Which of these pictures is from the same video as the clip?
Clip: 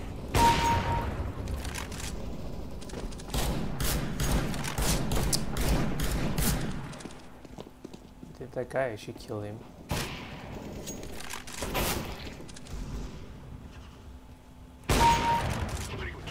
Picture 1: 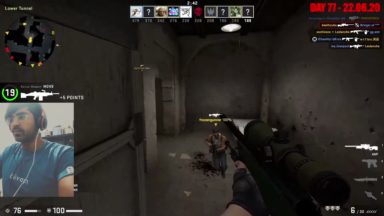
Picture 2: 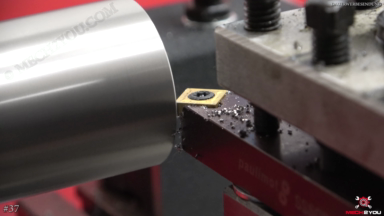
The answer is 1